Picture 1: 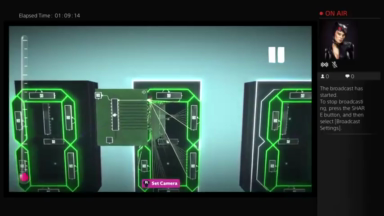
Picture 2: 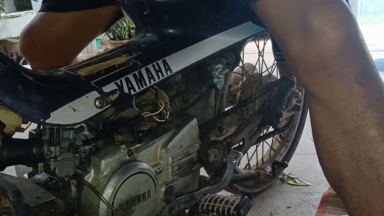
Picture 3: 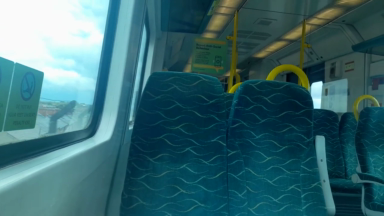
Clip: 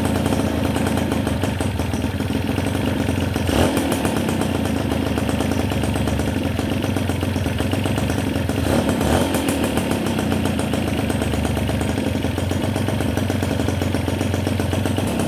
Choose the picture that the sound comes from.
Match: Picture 2